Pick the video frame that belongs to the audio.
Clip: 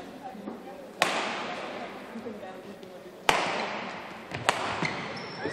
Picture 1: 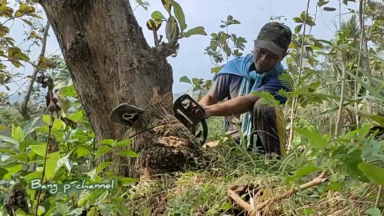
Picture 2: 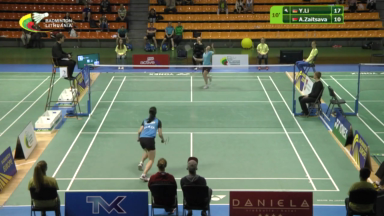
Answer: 2